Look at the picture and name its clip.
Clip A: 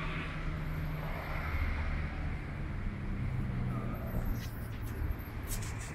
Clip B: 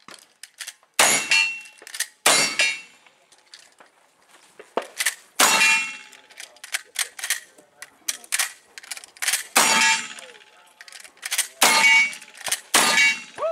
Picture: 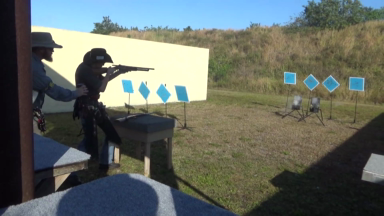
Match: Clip B